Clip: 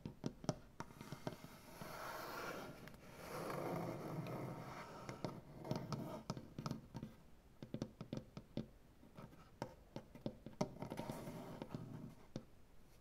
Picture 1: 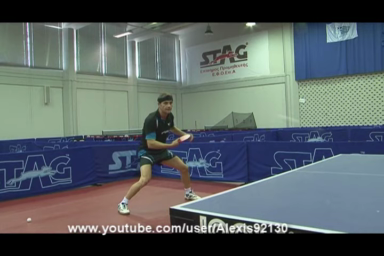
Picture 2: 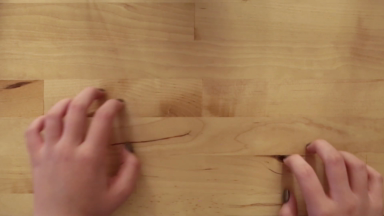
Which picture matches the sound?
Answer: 2